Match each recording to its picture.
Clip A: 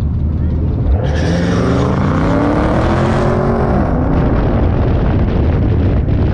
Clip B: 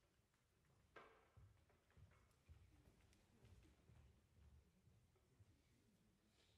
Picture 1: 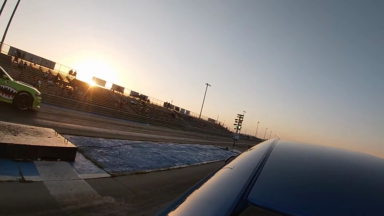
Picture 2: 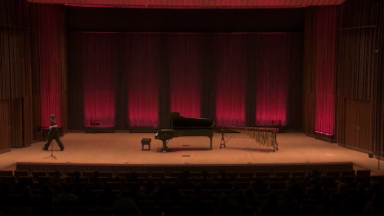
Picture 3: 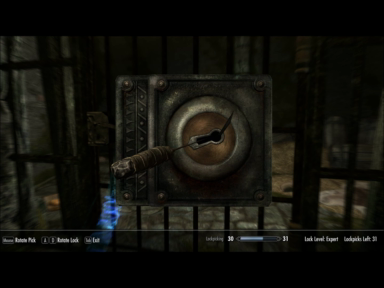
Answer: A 1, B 2